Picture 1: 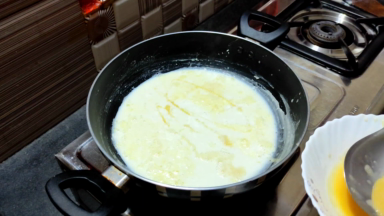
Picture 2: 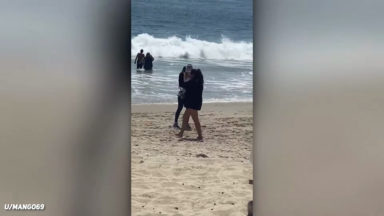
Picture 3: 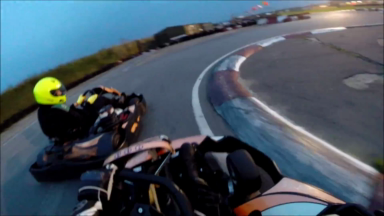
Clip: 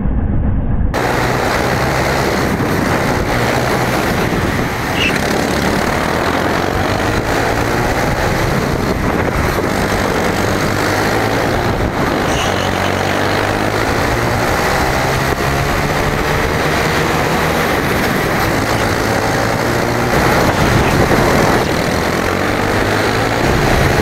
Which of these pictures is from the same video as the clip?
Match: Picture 3